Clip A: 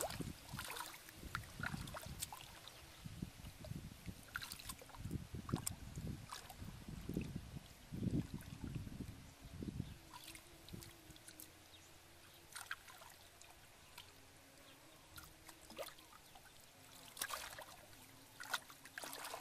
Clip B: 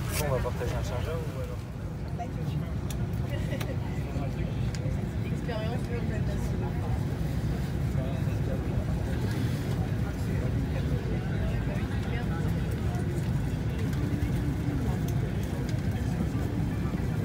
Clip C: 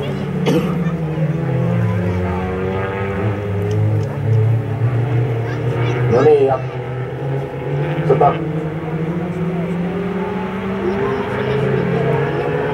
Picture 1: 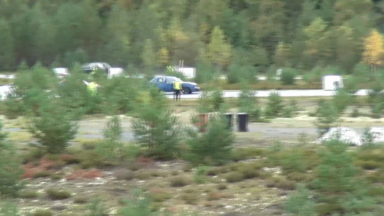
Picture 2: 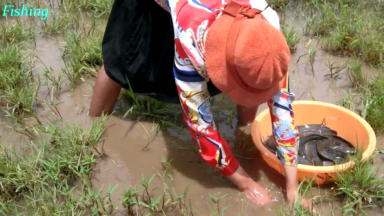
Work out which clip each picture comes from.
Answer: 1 C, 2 A